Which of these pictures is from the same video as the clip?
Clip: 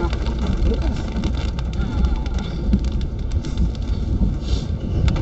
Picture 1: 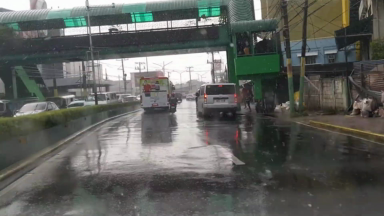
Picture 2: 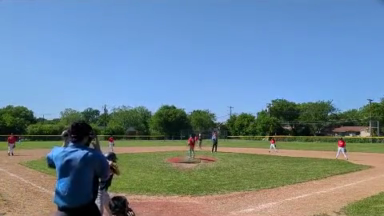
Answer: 1